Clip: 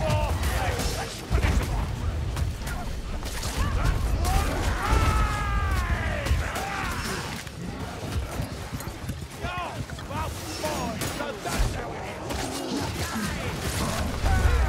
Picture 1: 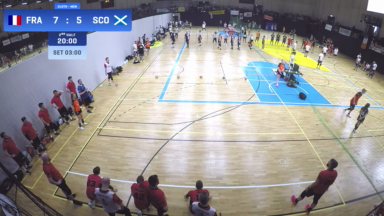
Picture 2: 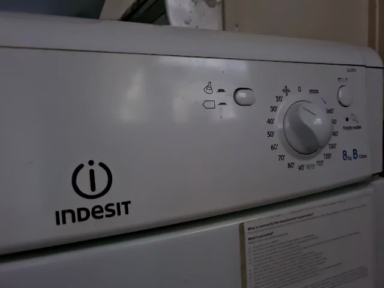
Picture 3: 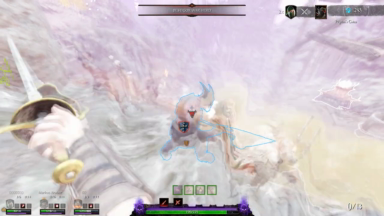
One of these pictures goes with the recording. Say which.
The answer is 3